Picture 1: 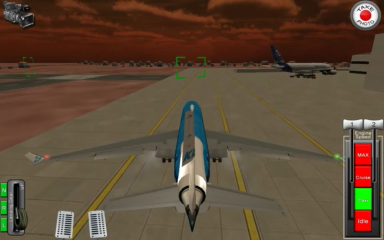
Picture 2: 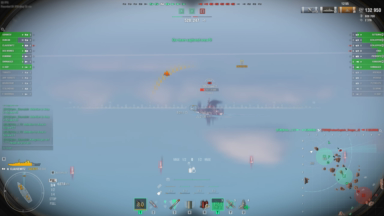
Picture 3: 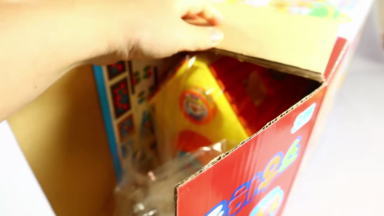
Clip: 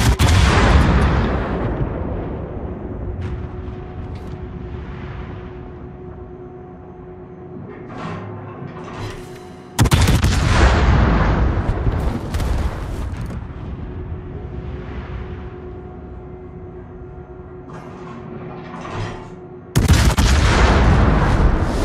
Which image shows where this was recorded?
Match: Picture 2